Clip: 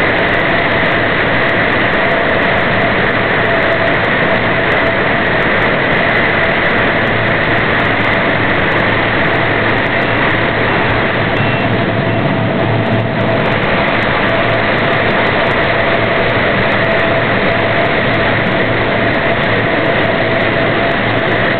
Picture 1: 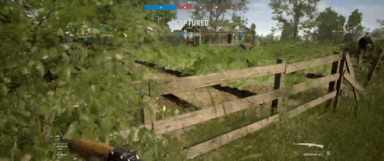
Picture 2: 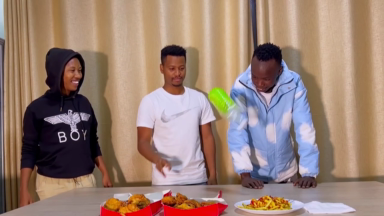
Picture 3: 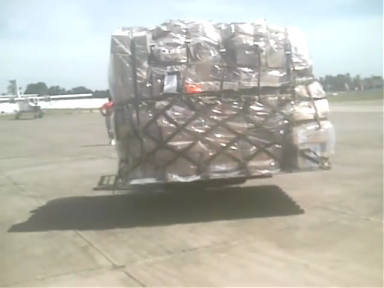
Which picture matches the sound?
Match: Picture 3